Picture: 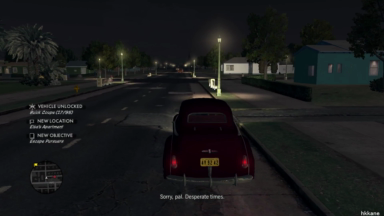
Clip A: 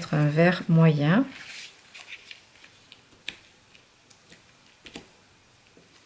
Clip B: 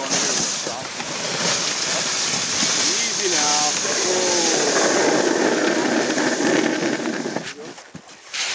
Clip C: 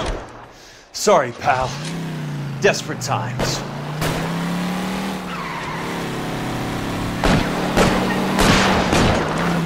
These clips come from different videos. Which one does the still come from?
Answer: C